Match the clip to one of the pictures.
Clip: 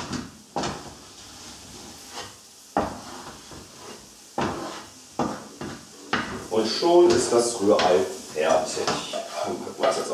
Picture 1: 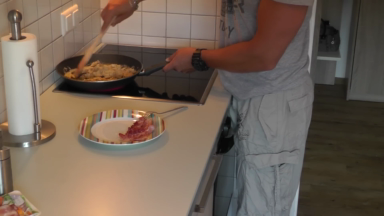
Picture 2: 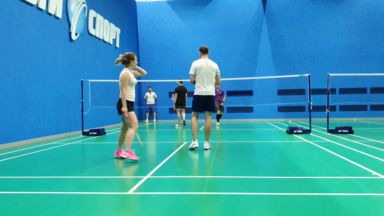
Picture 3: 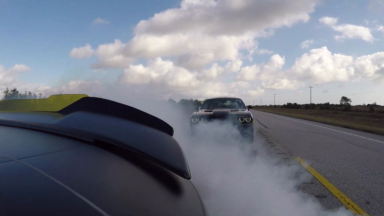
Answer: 1